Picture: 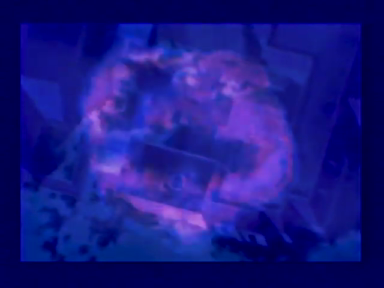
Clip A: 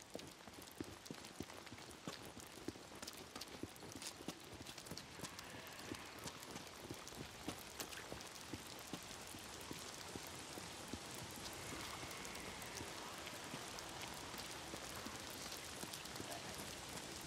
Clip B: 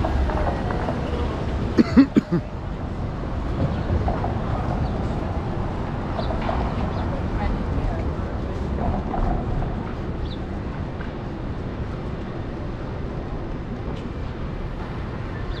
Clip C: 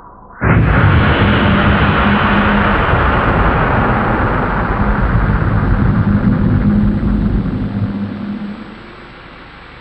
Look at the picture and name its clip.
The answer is C